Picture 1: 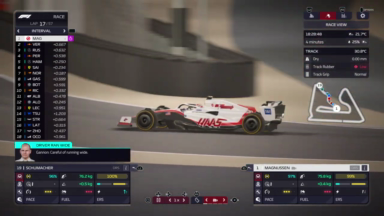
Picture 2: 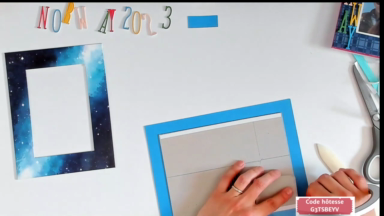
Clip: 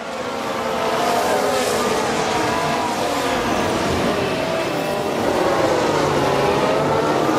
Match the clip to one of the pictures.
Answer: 1